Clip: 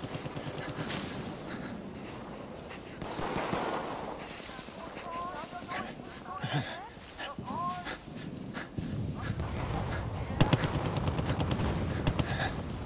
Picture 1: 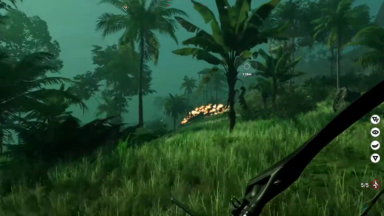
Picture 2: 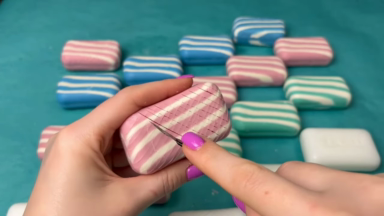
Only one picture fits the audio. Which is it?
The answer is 1